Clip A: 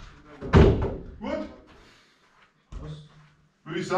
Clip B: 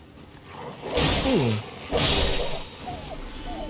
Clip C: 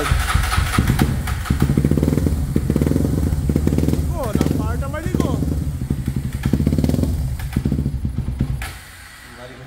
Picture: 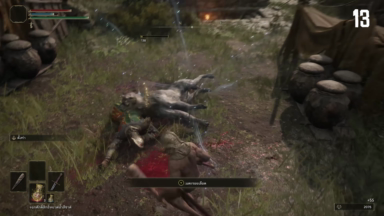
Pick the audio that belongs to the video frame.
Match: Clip B